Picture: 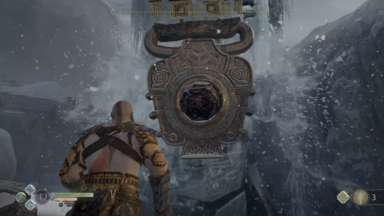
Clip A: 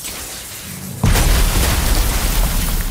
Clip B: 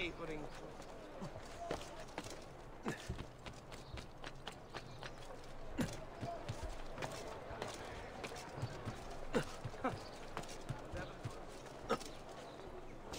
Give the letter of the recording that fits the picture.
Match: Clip A